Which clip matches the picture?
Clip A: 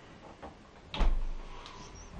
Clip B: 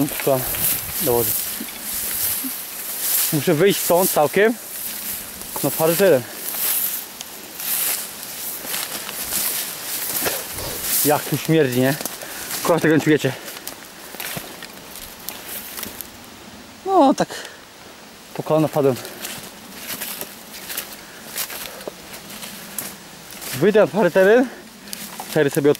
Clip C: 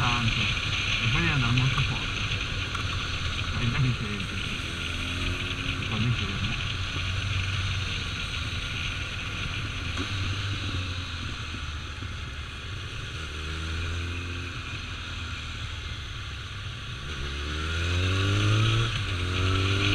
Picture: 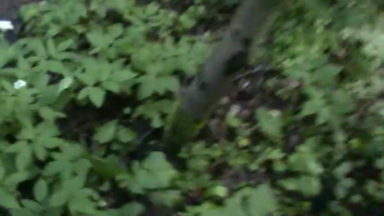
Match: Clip B